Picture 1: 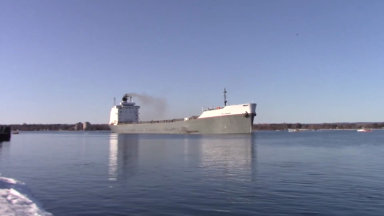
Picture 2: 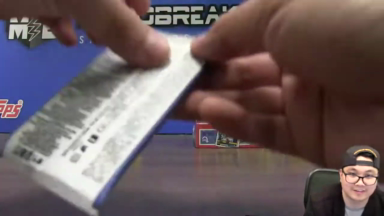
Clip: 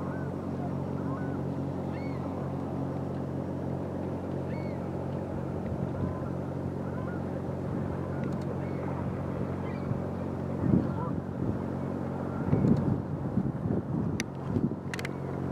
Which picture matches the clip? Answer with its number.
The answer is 1